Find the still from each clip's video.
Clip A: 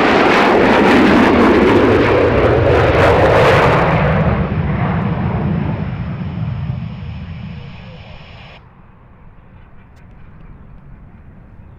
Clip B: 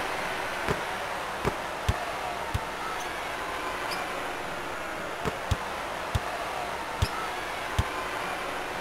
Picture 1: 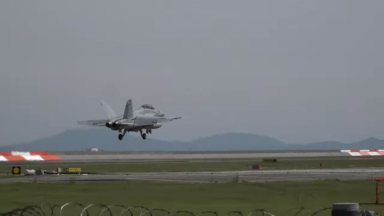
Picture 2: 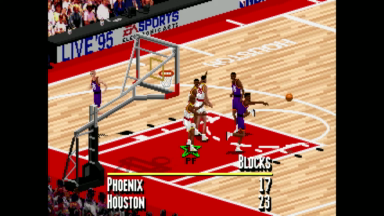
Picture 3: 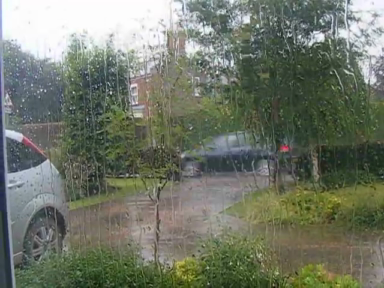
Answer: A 1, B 2